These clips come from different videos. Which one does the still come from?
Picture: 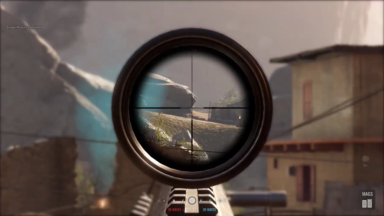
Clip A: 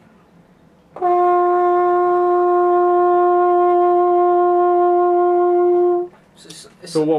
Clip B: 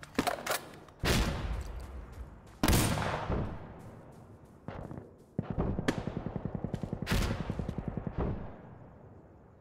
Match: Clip B